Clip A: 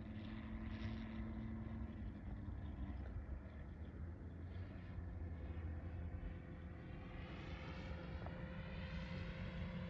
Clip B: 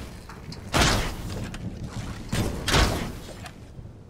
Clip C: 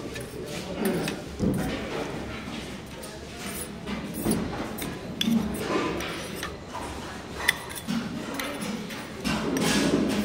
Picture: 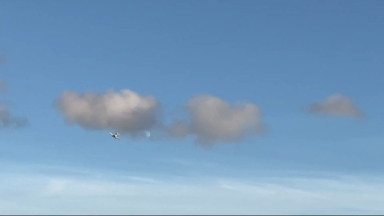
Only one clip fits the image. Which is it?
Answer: A